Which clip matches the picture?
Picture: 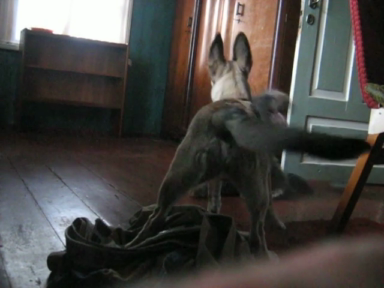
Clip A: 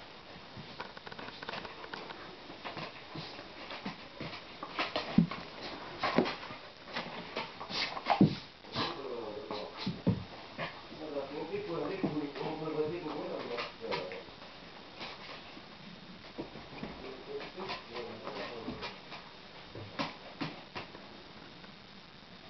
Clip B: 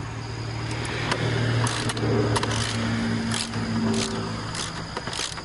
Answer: A